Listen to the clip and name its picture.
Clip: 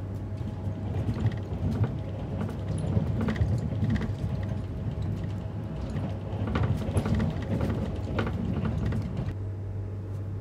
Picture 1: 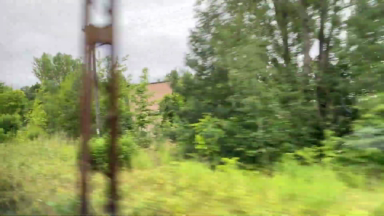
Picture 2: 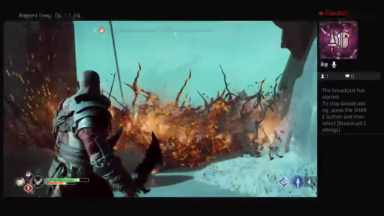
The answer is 1